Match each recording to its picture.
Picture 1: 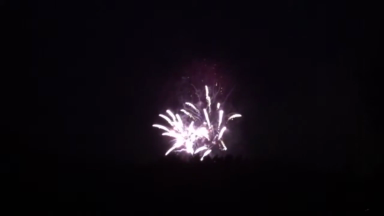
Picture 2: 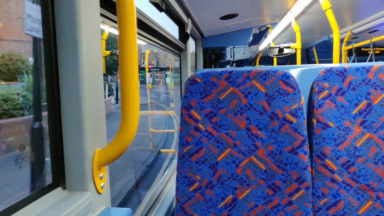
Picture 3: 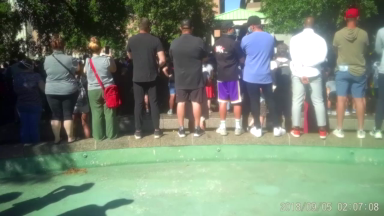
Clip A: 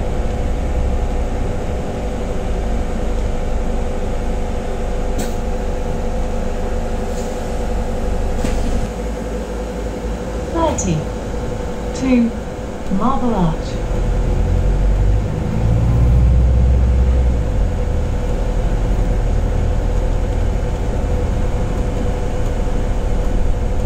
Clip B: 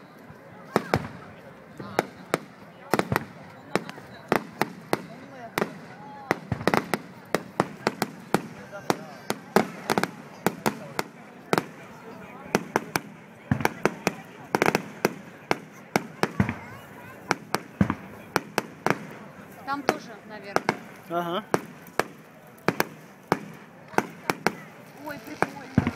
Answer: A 2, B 1